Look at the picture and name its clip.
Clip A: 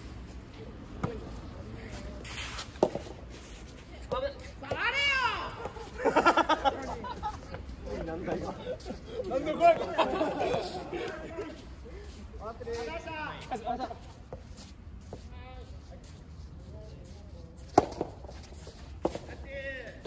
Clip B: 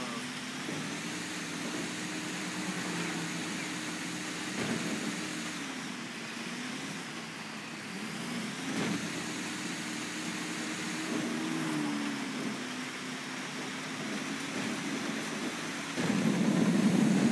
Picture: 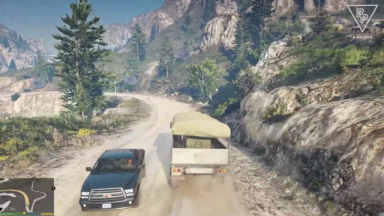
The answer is B